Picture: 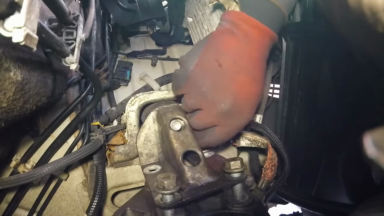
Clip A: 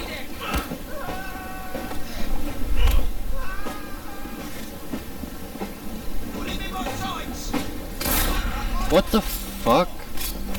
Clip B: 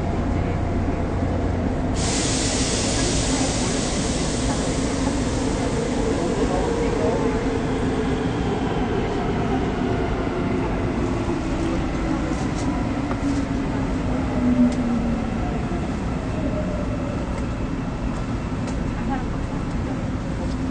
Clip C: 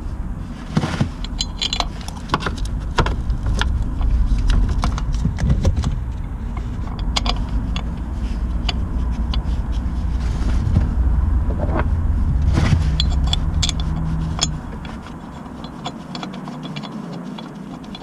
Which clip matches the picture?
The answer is C